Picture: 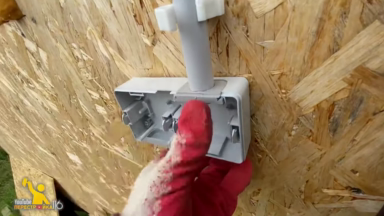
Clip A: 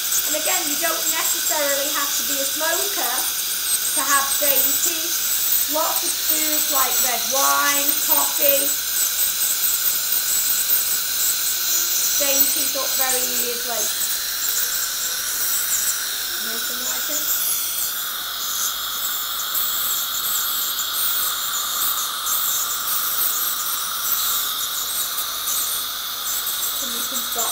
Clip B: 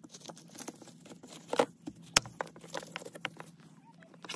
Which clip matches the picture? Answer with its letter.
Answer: B